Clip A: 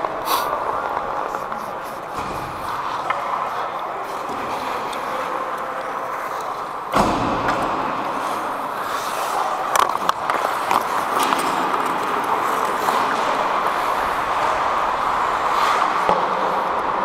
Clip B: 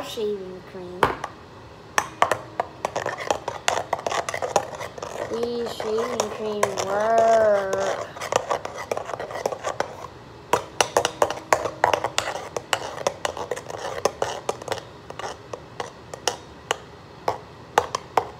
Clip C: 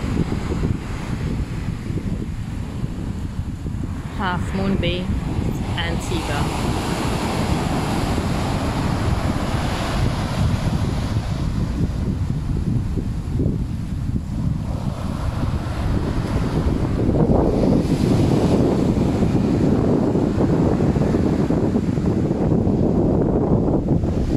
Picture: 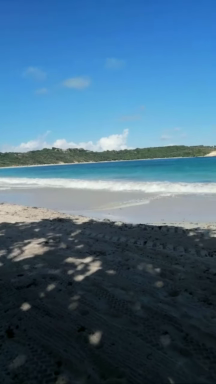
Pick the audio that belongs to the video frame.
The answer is C